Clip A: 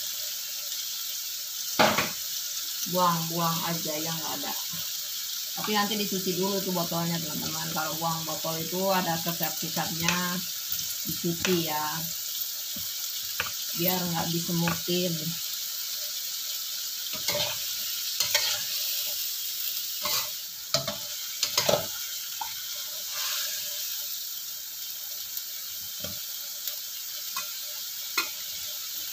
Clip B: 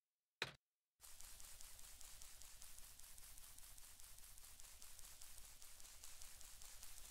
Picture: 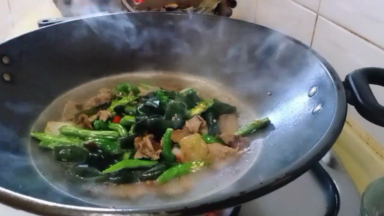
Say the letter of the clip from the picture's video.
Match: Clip A